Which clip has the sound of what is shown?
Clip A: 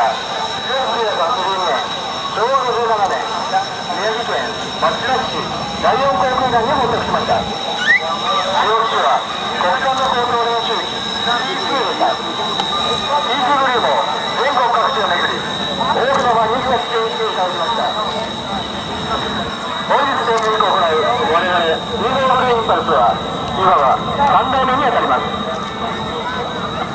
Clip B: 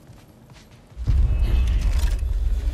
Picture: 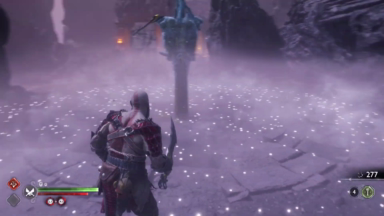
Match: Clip B